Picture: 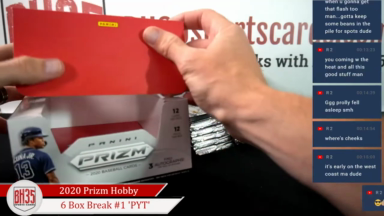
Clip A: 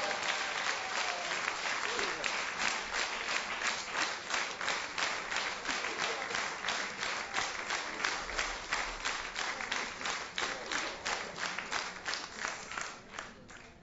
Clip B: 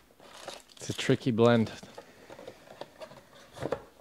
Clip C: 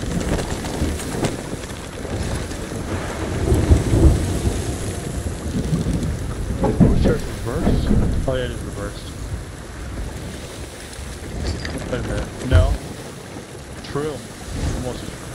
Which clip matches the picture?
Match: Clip B